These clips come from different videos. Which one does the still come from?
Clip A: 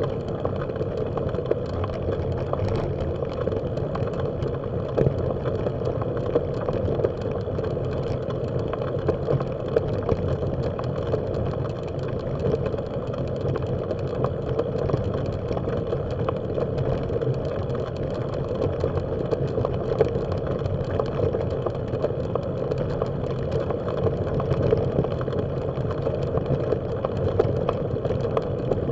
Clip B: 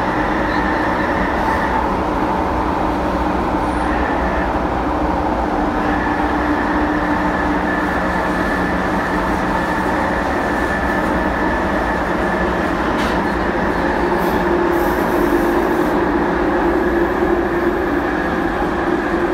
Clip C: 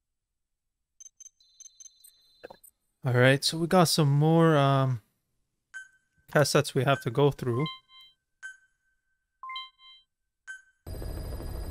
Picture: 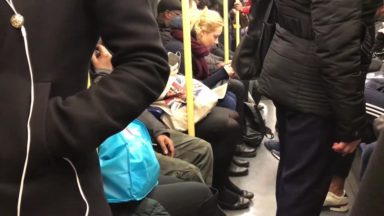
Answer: B